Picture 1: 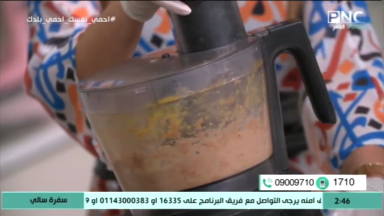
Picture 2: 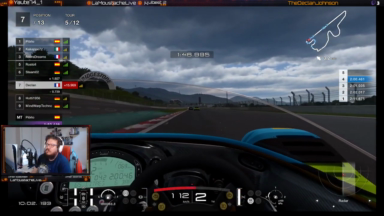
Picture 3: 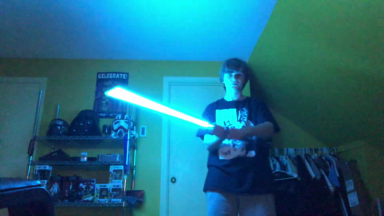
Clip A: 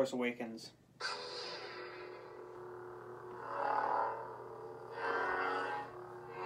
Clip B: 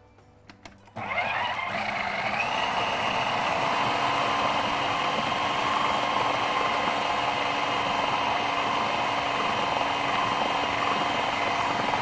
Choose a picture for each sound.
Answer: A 3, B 1